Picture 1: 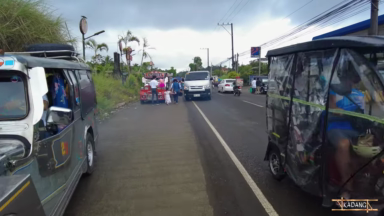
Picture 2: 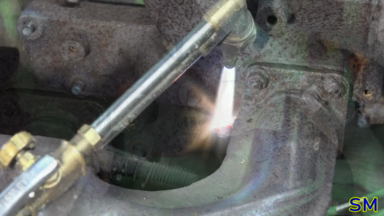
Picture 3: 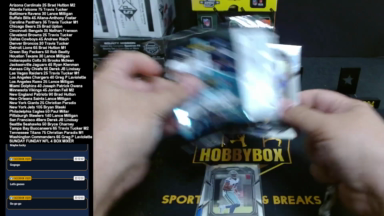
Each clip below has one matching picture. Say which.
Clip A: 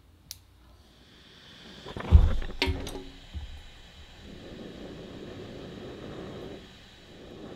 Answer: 2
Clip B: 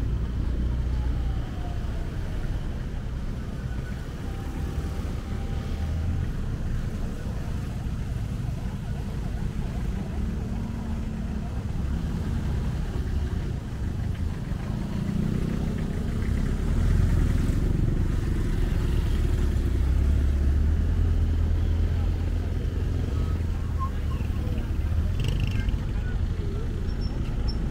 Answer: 1